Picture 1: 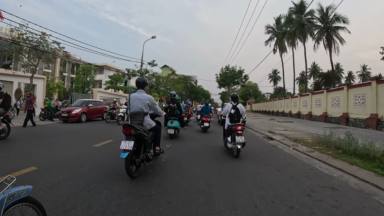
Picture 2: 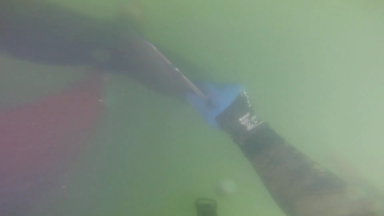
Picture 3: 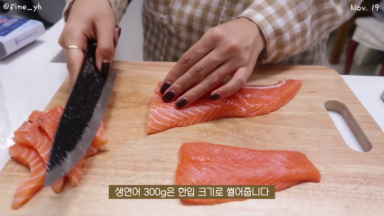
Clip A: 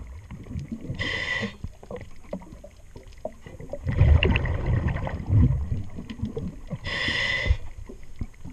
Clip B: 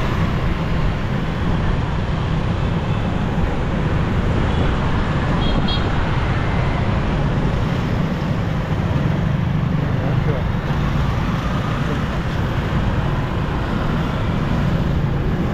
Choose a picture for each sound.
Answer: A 2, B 1